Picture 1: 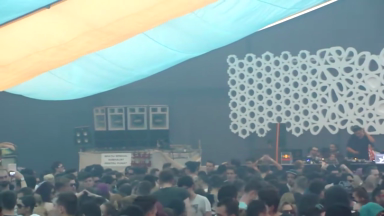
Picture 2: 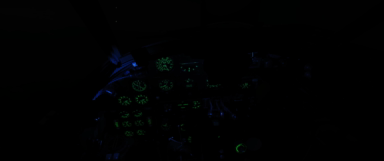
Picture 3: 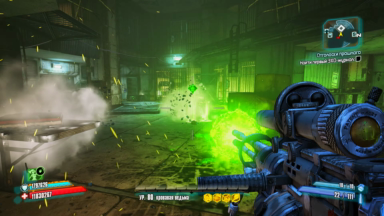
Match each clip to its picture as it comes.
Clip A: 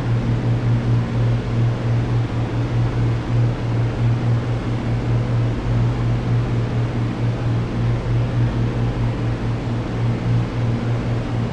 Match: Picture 2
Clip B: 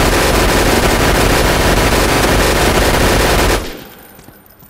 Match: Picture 3